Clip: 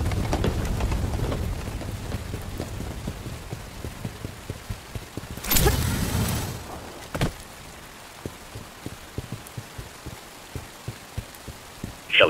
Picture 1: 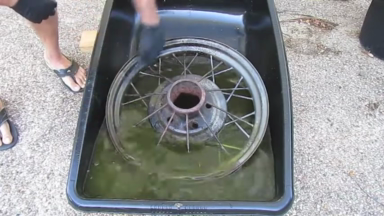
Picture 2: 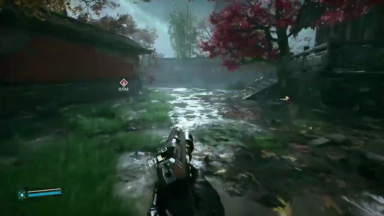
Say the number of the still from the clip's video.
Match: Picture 2